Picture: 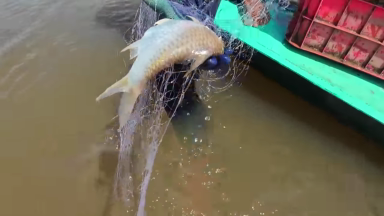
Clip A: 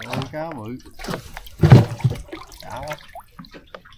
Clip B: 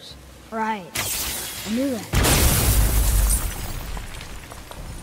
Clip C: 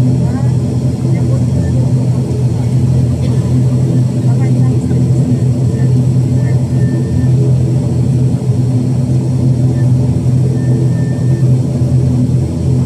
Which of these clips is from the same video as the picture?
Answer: A